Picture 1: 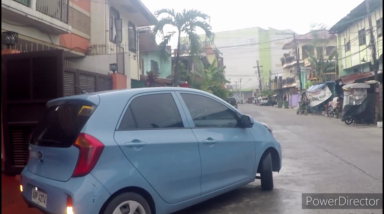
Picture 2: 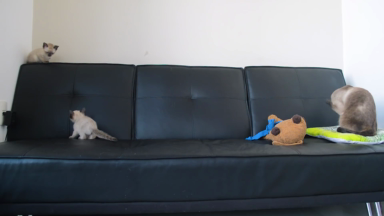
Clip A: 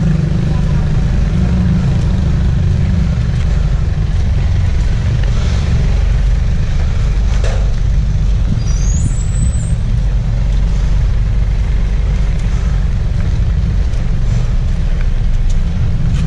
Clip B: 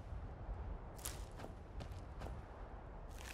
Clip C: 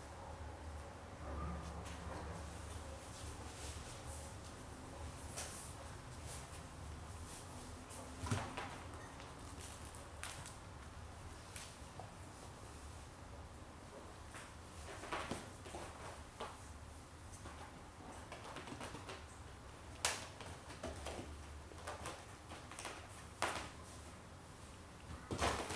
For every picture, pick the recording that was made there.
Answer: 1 A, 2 C